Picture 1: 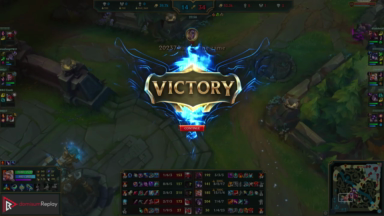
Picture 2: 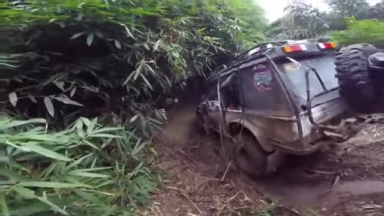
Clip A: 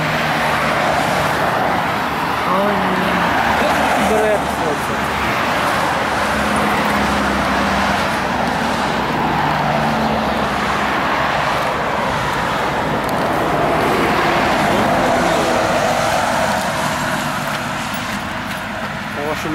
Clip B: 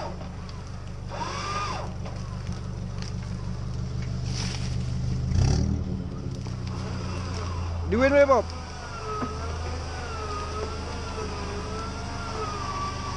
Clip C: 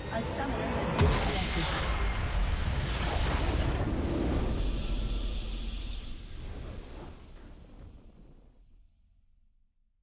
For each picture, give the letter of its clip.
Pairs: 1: C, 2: B